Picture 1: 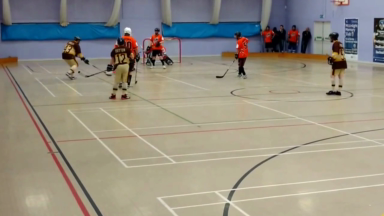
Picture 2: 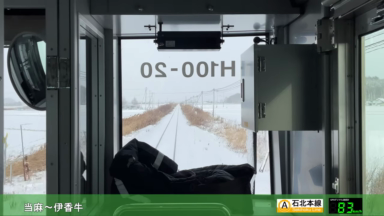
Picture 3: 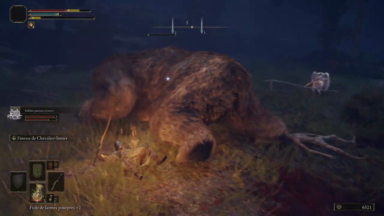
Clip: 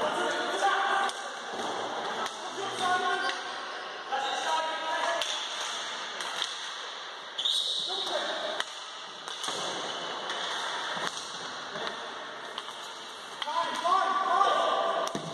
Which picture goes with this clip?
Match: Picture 1